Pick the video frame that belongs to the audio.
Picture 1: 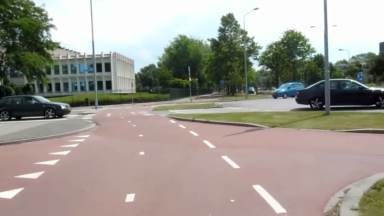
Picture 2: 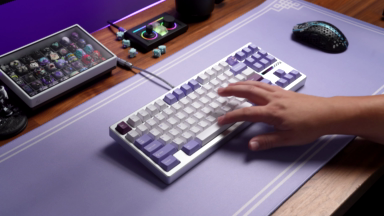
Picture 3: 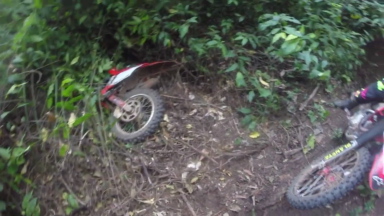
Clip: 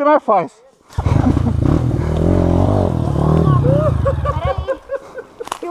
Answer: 3